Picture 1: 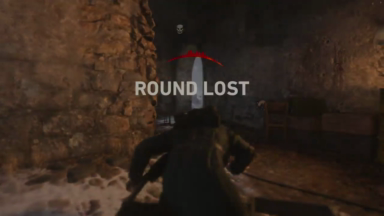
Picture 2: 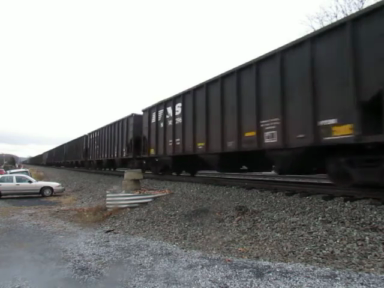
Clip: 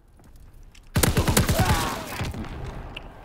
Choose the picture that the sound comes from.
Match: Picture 1